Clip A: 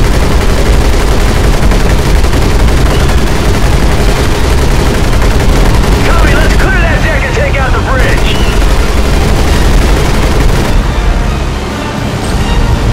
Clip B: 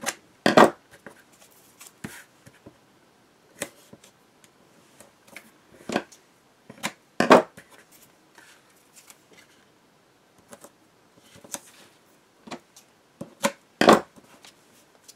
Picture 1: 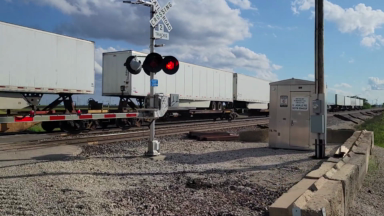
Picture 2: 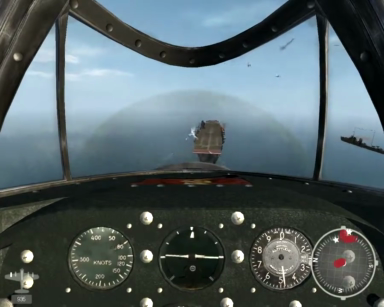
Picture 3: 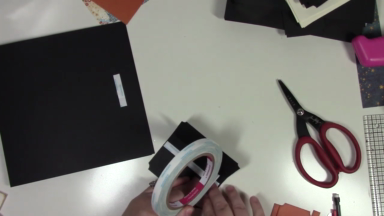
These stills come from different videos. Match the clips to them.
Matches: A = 2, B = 3